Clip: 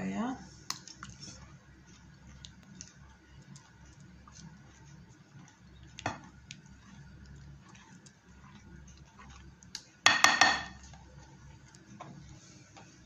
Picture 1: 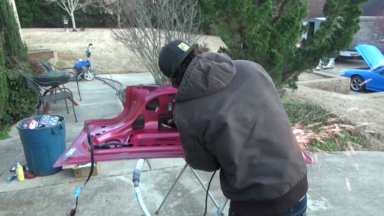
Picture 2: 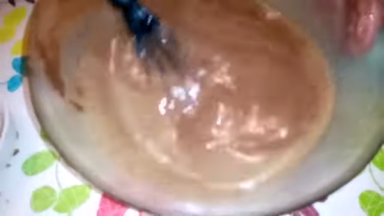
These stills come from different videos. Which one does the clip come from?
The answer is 2